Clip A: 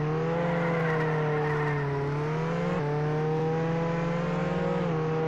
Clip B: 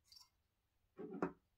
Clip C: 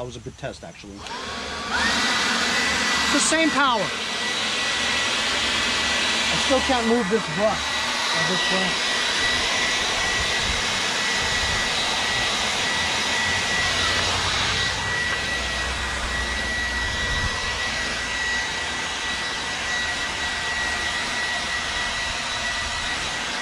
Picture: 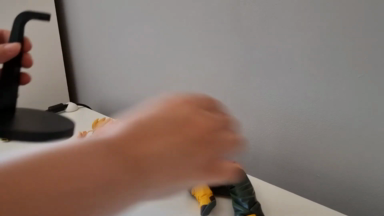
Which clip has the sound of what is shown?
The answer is B